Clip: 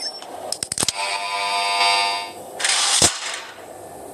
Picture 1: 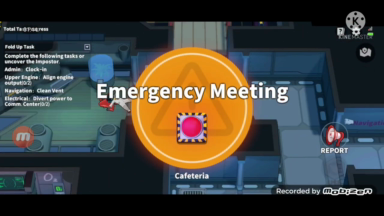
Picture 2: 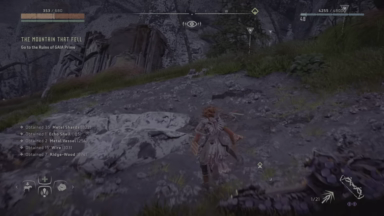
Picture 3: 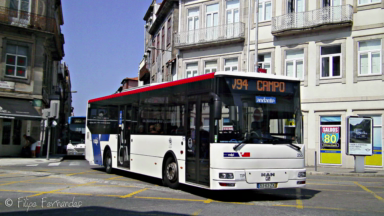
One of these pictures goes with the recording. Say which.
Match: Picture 1